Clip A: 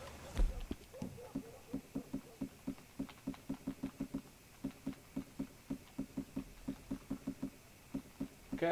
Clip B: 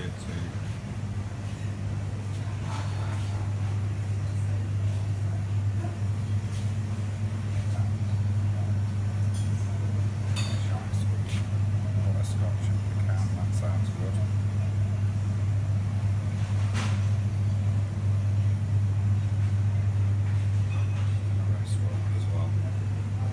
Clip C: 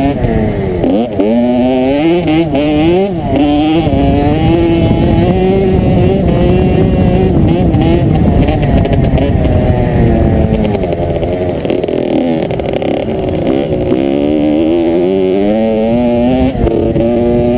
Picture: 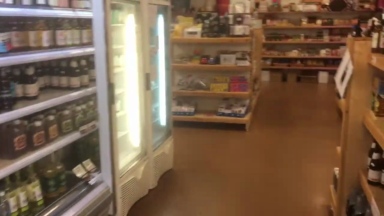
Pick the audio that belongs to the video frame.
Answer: B